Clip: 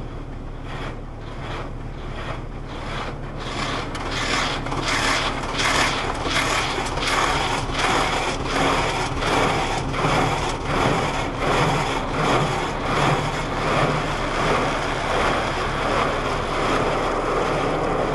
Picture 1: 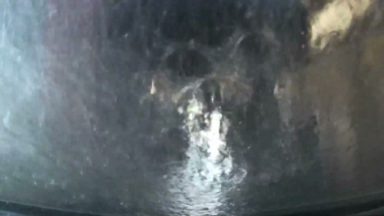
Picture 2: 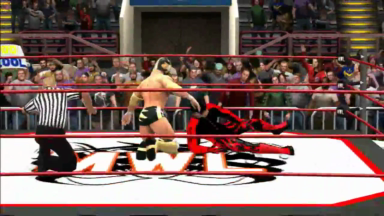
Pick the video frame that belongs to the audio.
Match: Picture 1